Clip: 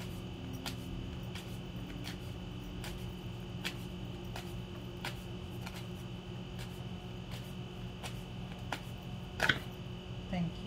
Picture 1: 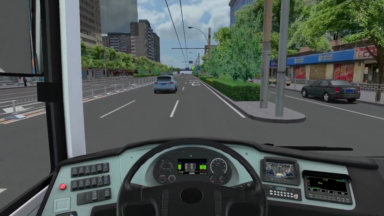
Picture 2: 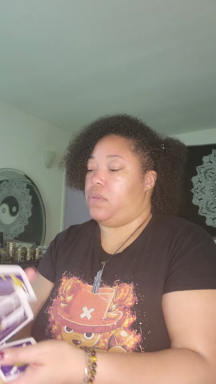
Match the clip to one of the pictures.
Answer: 2